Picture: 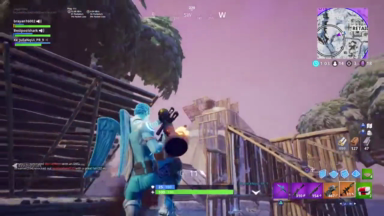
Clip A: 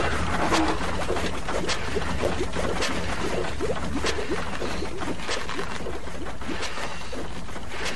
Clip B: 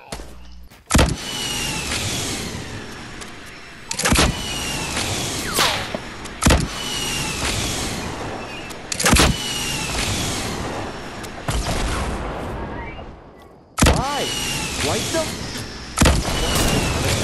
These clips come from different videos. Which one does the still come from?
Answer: B